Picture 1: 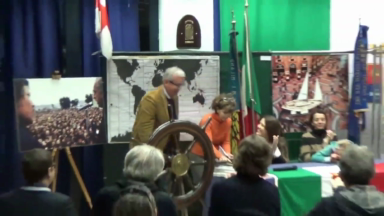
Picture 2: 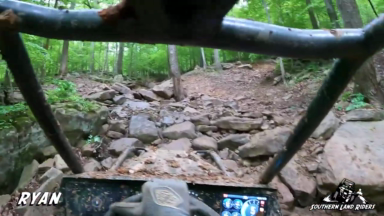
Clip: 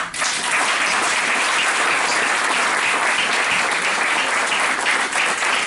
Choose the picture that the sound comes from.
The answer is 1